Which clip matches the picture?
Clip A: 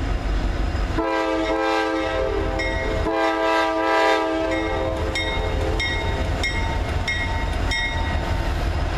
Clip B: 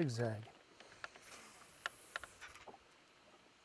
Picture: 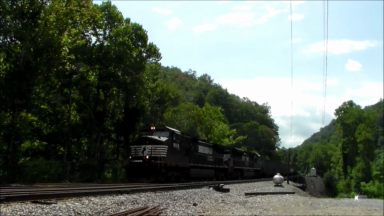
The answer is A